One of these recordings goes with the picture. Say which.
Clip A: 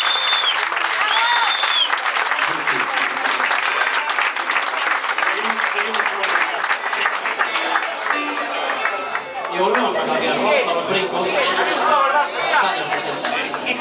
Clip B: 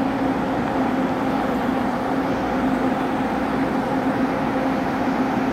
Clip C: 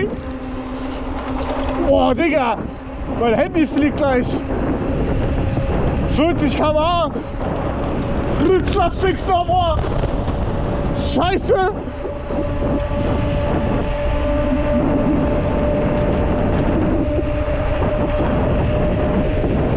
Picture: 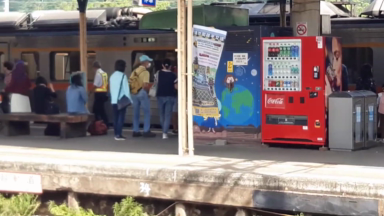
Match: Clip B